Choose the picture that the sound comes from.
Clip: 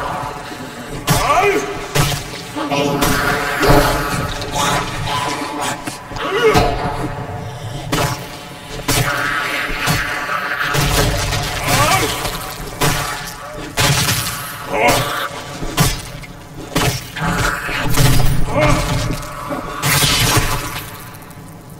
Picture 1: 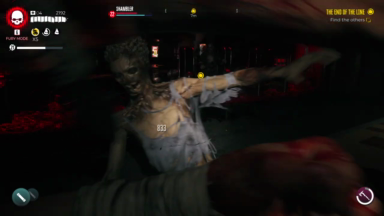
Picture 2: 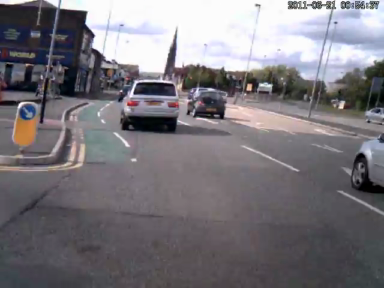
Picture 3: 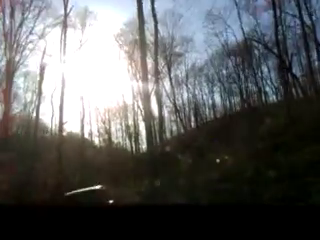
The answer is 1